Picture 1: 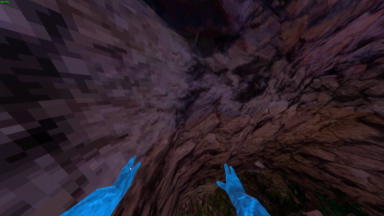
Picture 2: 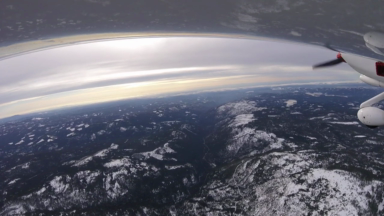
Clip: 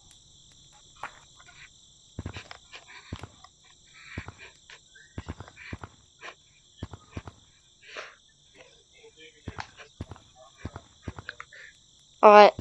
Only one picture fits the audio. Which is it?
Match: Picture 1